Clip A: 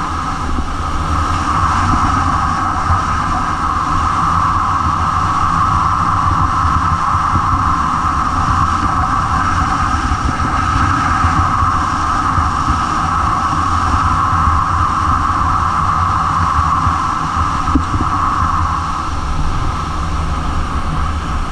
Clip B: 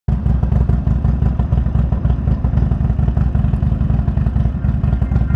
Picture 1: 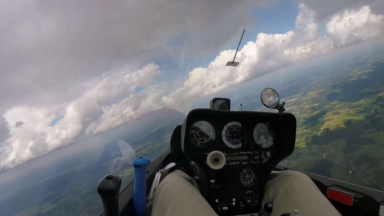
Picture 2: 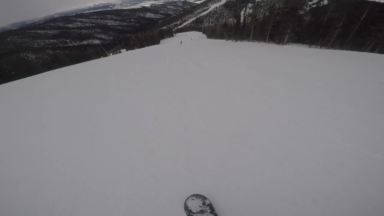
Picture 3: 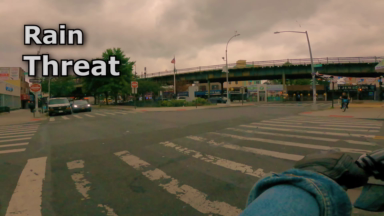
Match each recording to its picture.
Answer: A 2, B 3